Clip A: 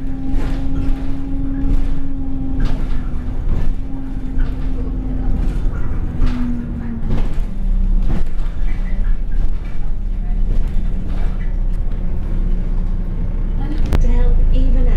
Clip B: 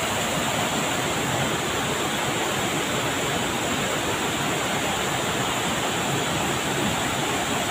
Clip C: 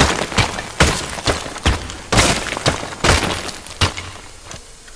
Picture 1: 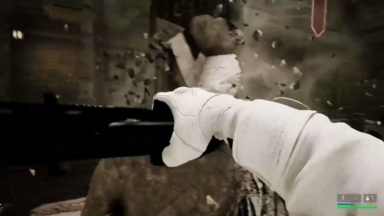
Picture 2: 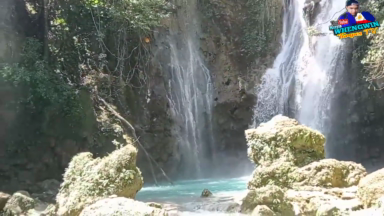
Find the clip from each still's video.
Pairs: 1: C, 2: B